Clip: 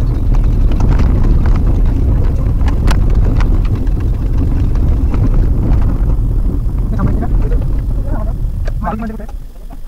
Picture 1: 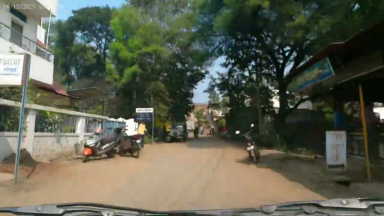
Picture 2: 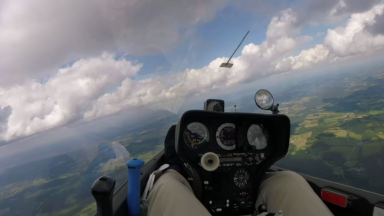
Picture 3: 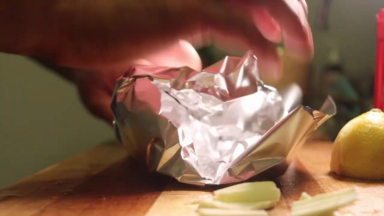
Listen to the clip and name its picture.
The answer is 1